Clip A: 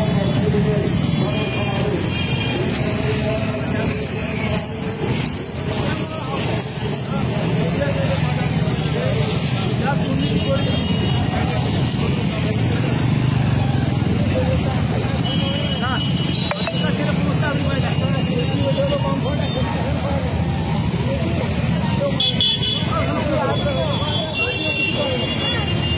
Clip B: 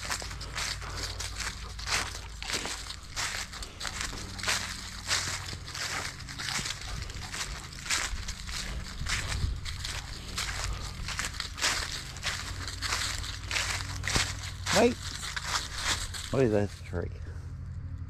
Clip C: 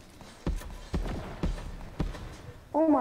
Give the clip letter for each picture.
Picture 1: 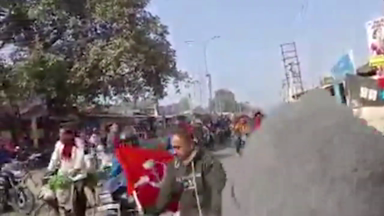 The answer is A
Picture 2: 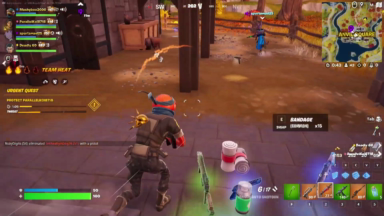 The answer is C